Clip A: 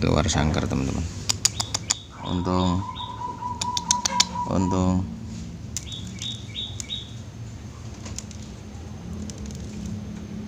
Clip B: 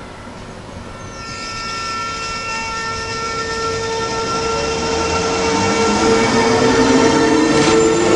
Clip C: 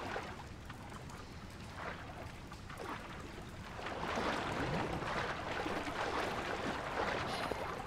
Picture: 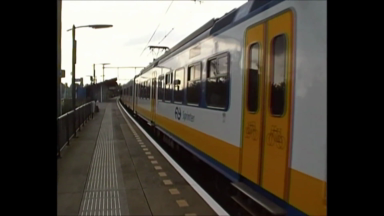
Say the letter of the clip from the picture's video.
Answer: B